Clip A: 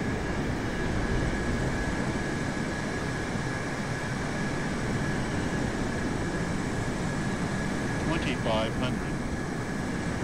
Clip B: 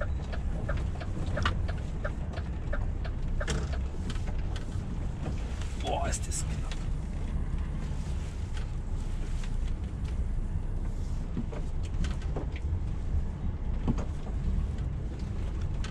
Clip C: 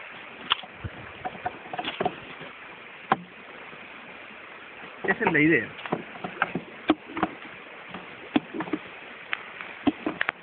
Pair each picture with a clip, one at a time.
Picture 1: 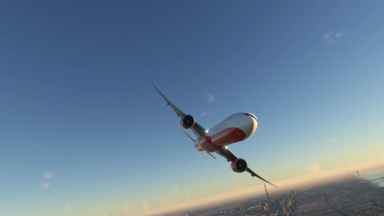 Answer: A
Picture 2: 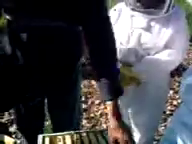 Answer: C